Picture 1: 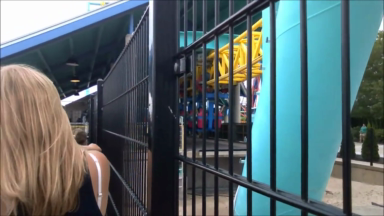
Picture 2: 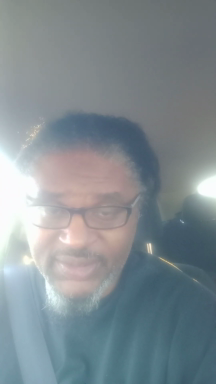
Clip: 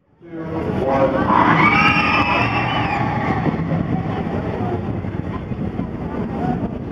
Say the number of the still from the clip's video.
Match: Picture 1